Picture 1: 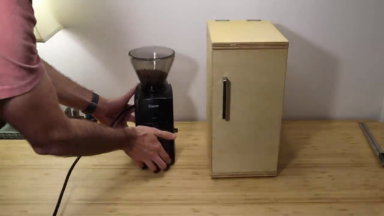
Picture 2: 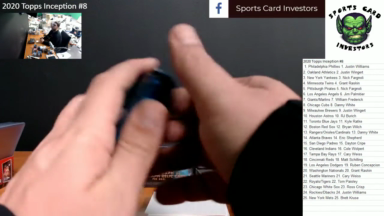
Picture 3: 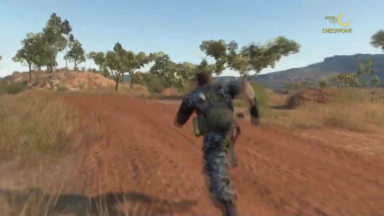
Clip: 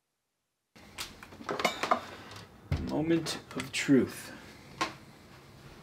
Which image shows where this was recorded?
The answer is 1